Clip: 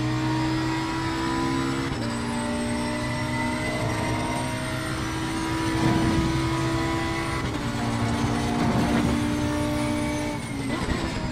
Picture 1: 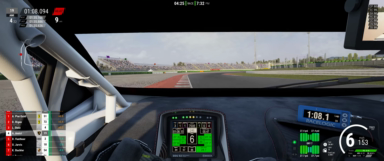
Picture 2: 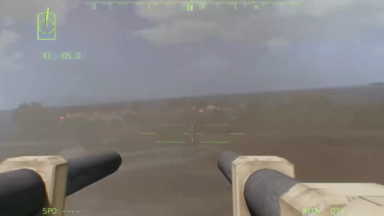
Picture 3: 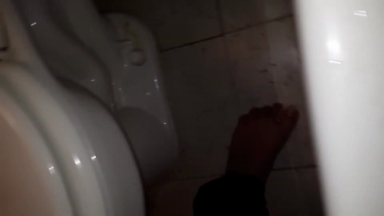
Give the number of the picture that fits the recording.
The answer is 1